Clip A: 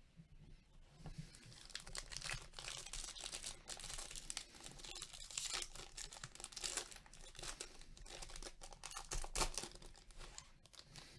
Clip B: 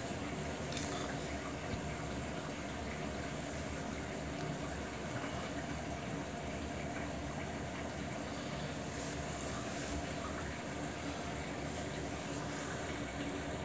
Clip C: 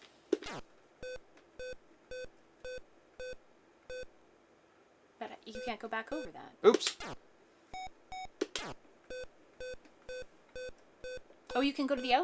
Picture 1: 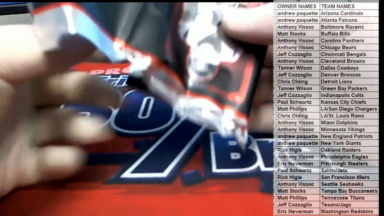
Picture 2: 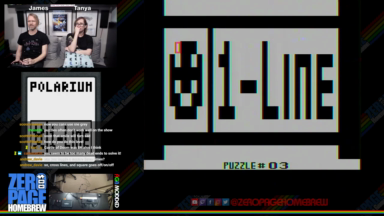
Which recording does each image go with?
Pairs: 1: A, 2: C